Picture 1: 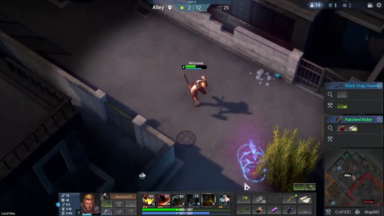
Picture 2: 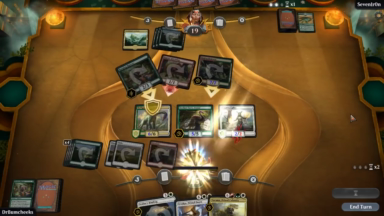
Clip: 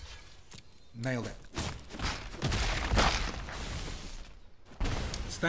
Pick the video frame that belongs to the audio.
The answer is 2